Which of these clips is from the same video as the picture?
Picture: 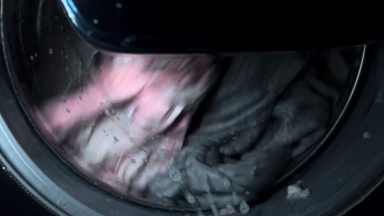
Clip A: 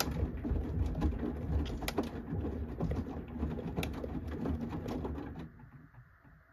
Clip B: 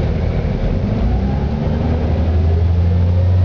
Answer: A